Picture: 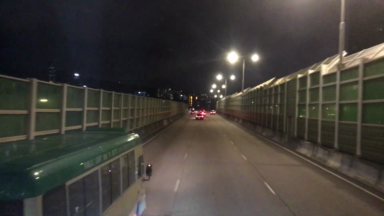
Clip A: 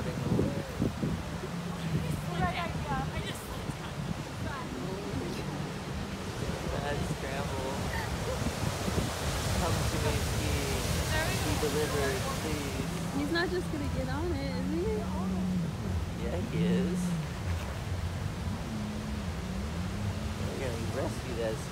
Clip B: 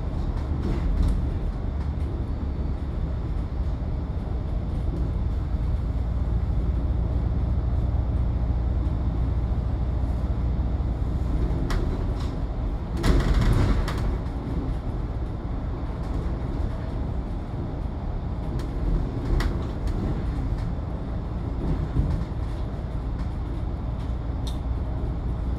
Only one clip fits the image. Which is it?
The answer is B